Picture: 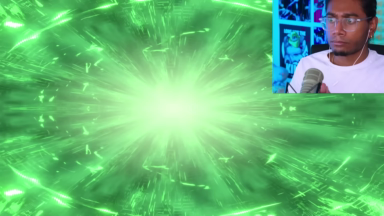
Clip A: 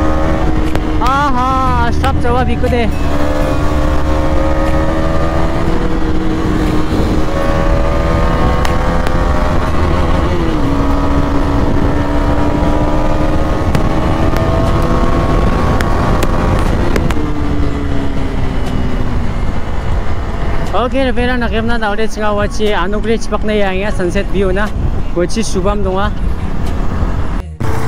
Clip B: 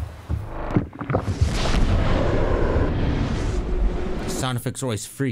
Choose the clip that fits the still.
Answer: B